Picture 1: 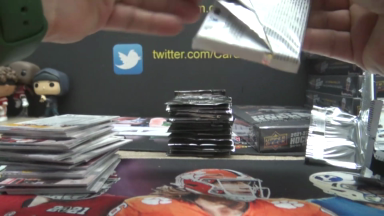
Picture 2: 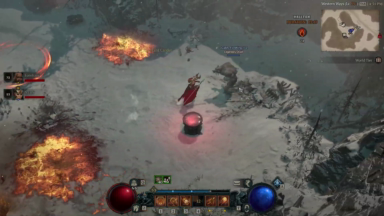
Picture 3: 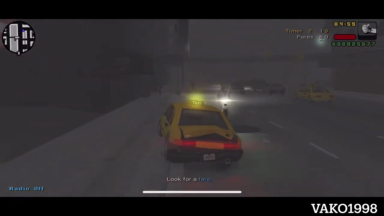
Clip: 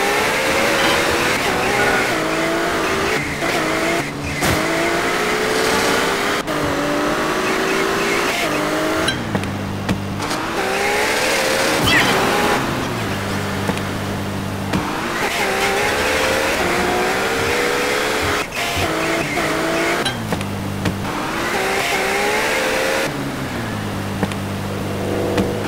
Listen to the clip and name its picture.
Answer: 3